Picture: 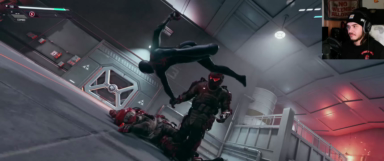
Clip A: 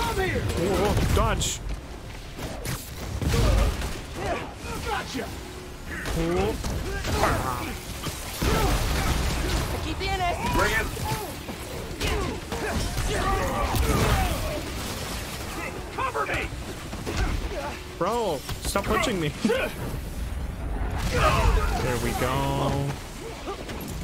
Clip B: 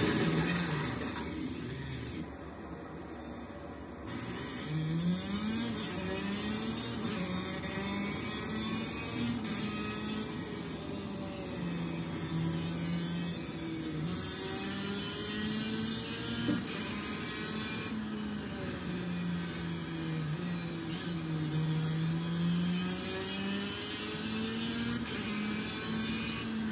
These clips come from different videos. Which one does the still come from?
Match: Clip A